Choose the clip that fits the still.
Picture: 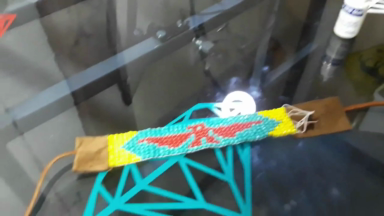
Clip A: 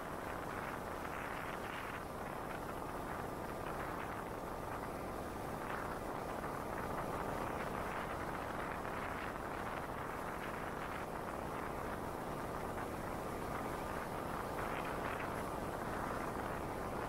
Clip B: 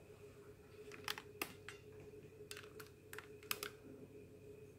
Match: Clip B